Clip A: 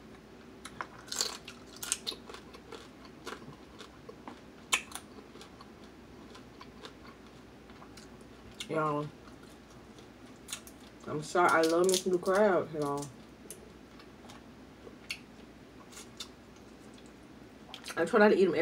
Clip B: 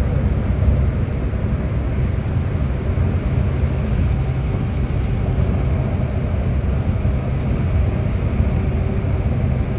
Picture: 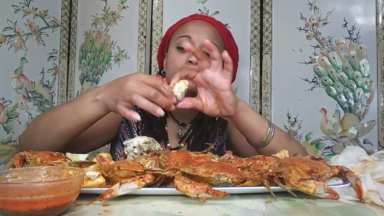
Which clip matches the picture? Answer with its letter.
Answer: A